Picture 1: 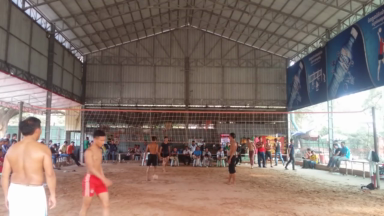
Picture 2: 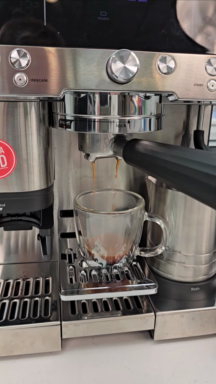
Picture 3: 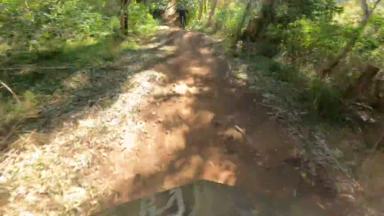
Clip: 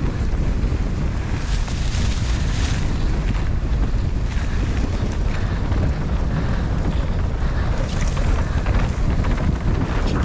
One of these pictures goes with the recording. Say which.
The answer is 3